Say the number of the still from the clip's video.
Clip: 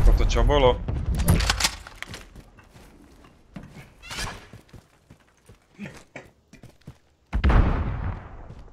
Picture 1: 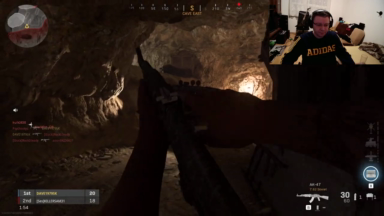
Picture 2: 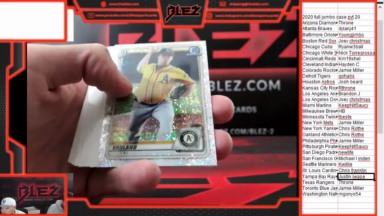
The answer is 1